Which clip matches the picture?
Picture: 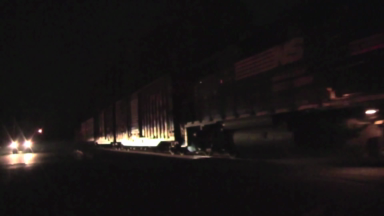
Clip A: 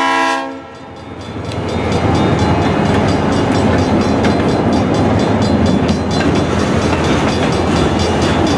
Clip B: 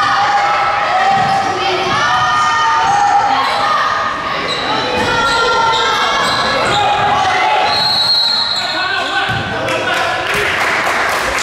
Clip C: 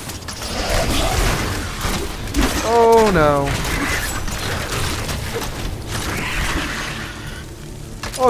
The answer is A